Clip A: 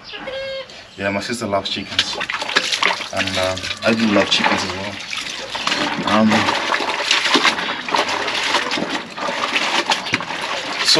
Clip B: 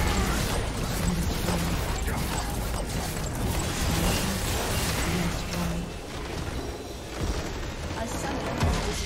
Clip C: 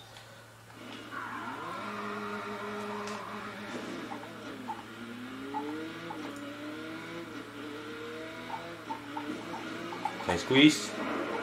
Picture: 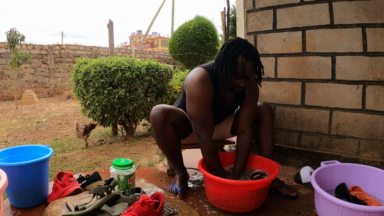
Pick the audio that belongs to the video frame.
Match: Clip A